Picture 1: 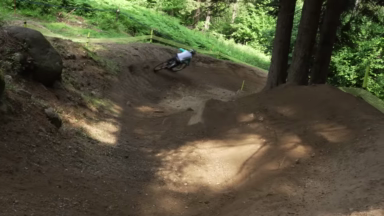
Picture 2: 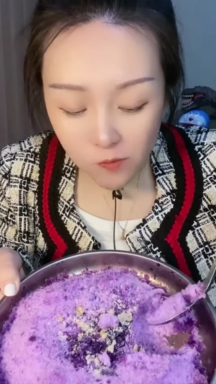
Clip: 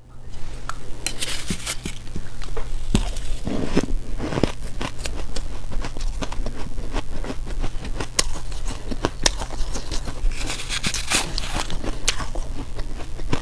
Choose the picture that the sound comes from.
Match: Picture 2